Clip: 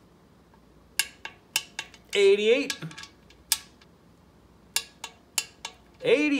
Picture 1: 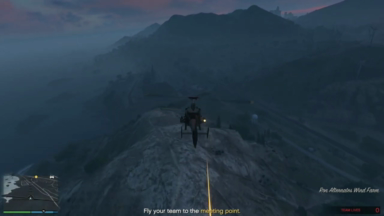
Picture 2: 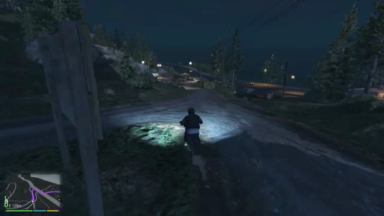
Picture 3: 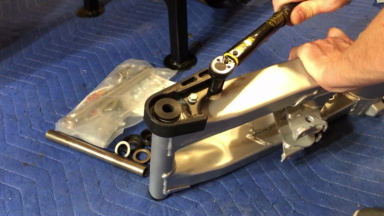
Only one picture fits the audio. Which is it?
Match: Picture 3